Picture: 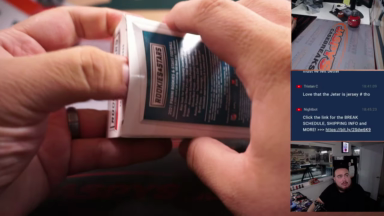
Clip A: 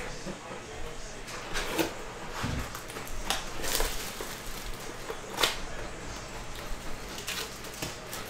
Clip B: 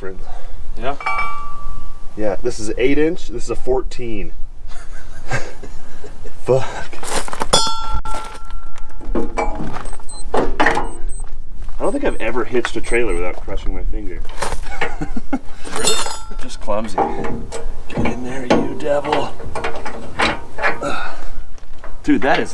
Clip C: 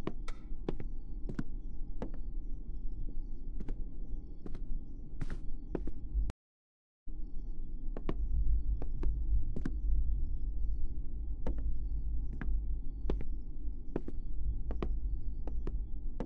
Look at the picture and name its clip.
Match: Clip A